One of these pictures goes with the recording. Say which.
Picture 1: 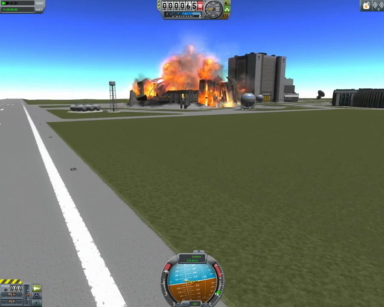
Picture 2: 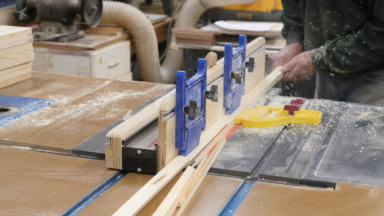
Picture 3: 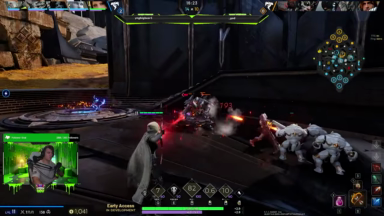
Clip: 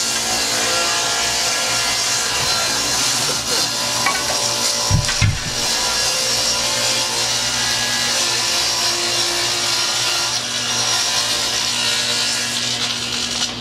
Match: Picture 2